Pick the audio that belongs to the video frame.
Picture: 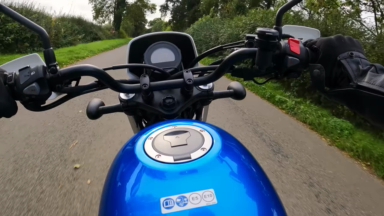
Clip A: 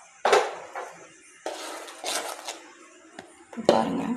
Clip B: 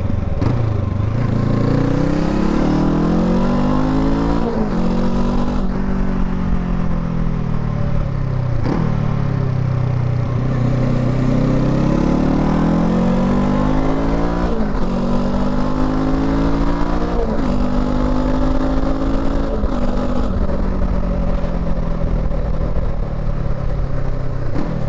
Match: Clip B